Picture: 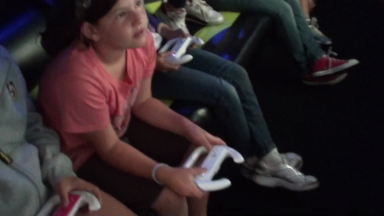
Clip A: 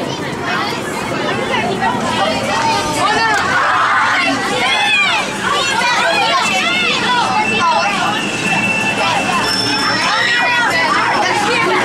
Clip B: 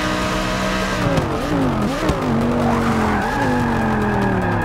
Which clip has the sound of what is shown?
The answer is A